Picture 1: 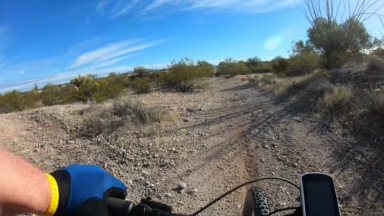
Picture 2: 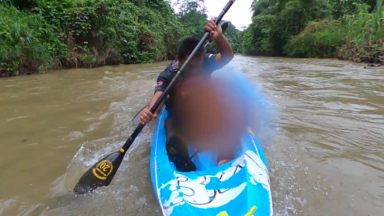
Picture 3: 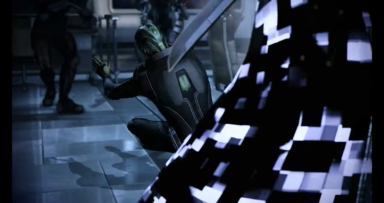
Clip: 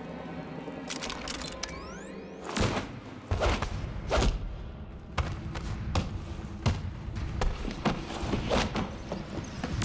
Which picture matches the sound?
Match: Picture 3